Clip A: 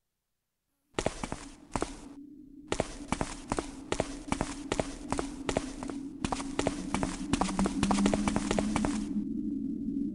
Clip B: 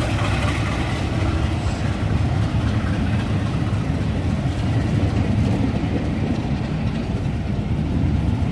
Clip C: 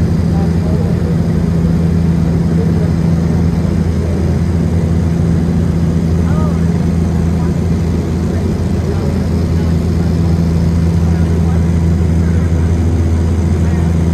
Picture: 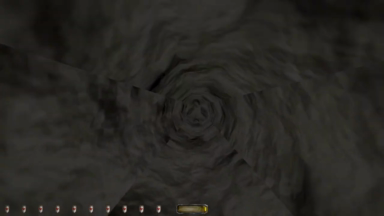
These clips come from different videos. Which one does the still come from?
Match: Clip A